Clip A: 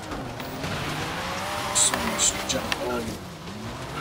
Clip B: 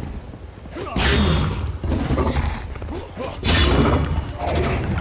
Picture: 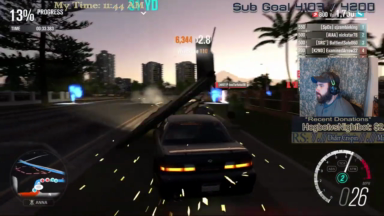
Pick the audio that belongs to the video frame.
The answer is A